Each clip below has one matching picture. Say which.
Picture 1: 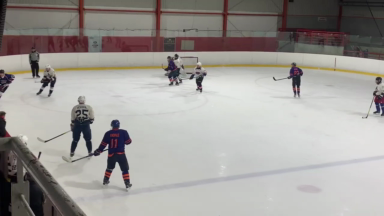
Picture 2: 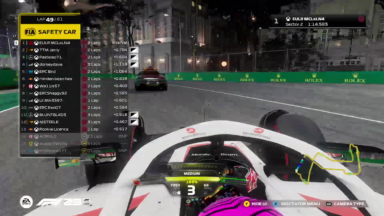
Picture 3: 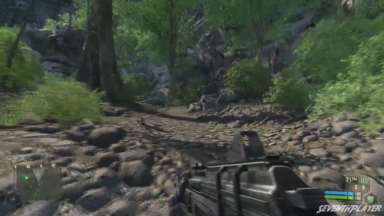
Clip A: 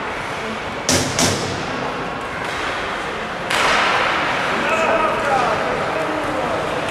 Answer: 1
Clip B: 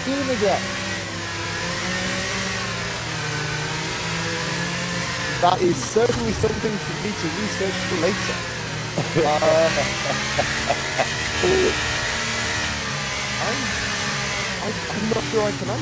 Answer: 2